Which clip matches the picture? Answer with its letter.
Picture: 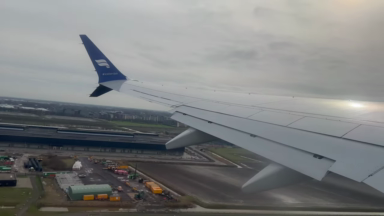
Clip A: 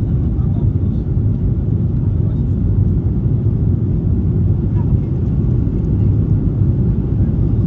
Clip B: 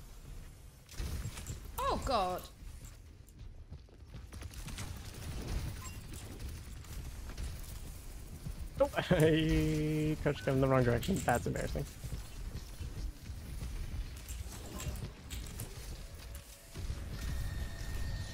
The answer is A